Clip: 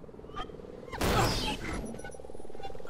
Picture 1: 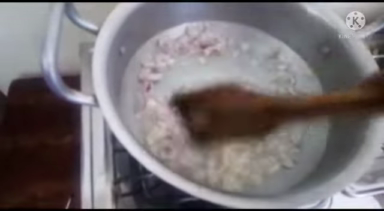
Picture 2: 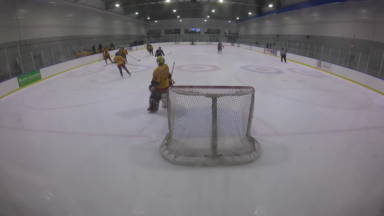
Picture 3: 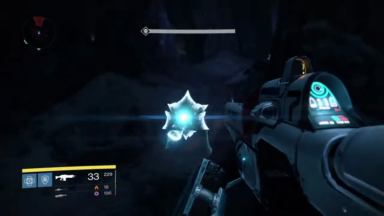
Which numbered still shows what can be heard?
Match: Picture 3